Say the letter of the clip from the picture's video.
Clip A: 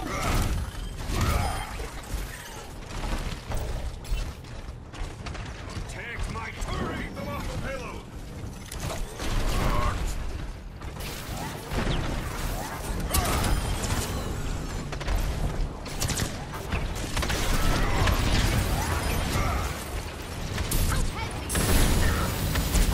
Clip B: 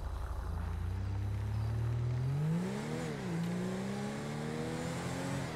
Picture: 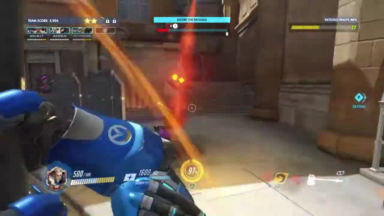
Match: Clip A